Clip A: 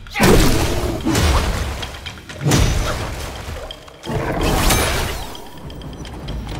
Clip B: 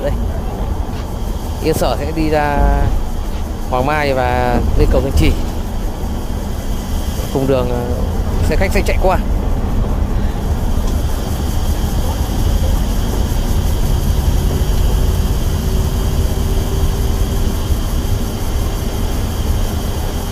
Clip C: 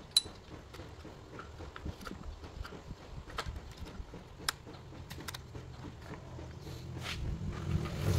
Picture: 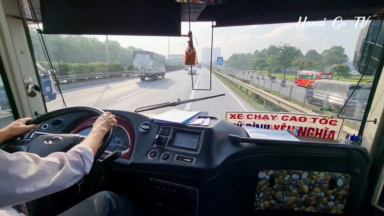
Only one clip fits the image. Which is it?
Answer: B